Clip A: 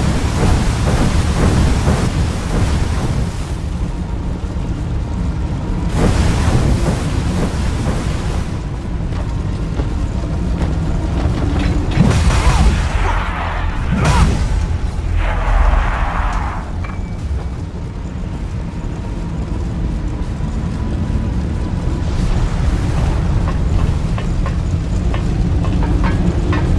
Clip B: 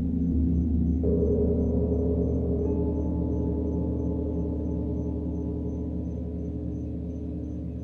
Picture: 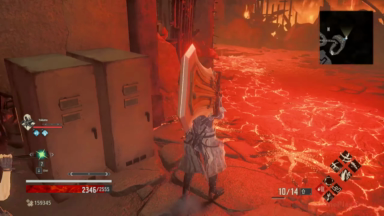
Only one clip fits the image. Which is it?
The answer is A